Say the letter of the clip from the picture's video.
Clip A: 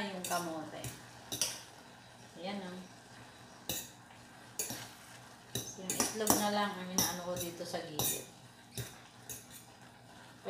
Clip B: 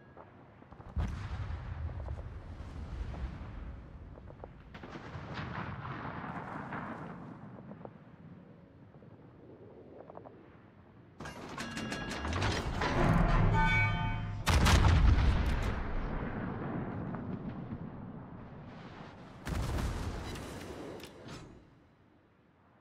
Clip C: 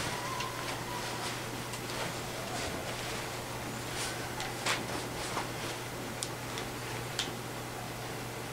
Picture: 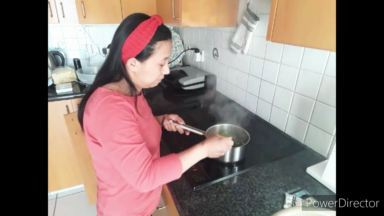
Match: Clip A